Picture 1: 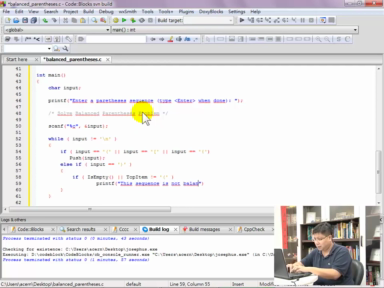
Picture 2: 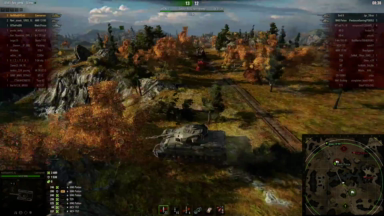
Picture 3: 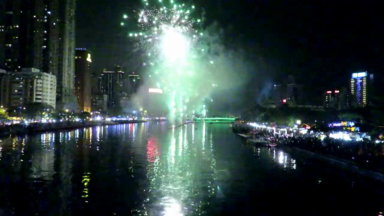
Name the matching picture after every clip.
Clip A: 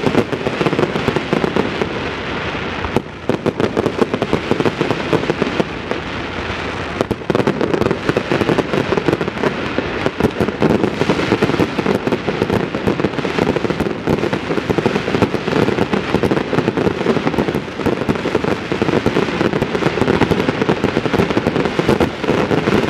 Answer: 3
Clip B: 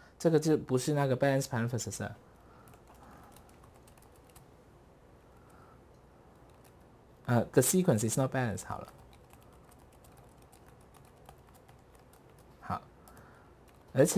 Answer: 1